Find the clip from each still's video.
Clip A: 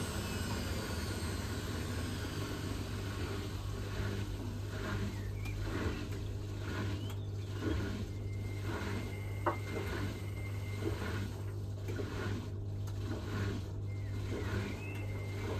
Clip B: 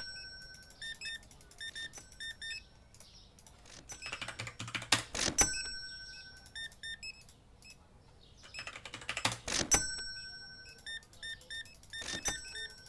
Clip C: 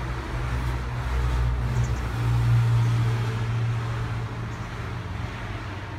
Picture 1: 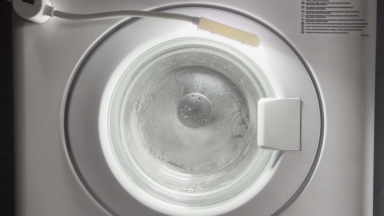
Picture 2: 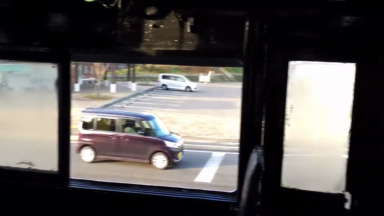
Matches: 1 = A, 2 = C